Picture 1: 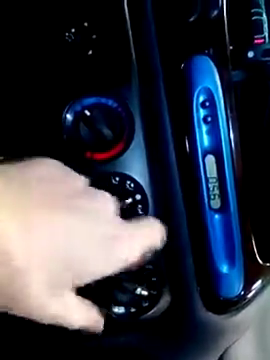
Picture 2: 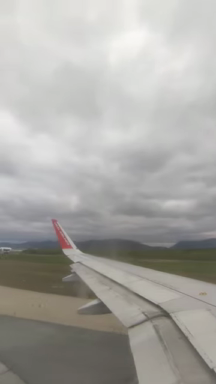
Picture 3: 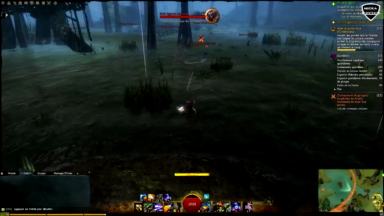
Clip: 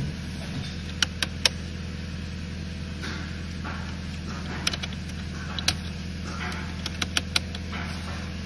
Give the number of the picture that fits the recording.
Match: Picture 1